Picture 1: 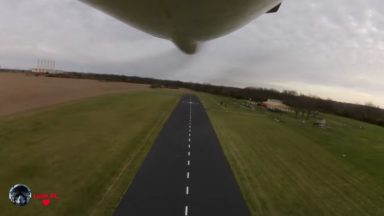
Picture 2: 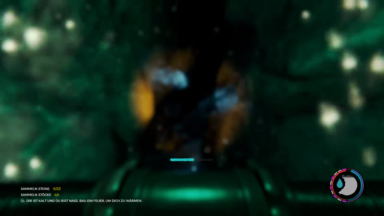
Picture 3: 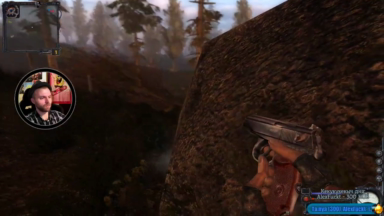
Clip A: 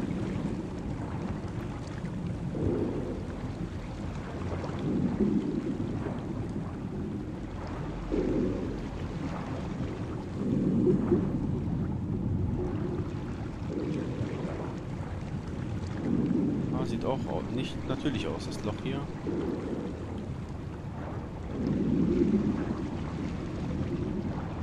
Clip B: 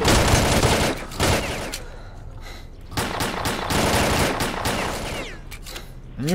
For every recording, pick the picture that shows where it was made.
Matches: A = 2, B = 3